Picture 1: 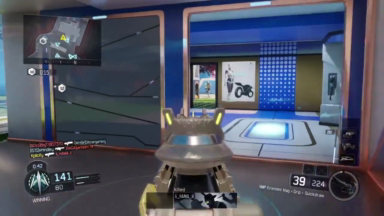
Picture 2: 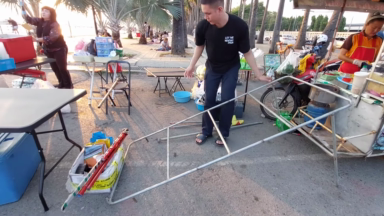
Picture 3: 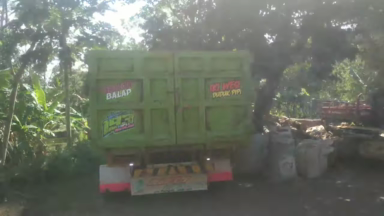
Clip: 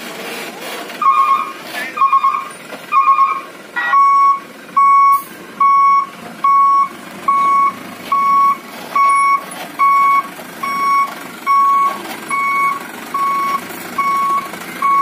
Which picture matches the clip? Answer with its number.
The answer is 3